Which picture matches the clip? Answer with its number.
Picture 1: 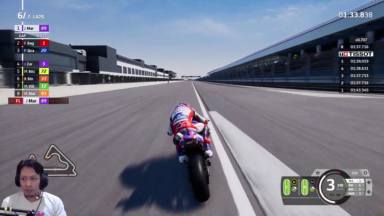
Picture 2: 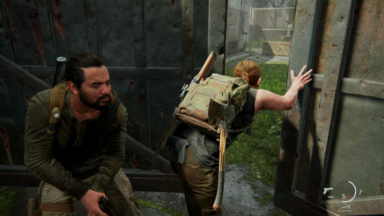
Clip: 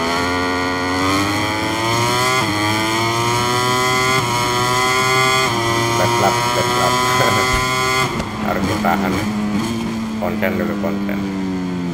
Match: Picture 1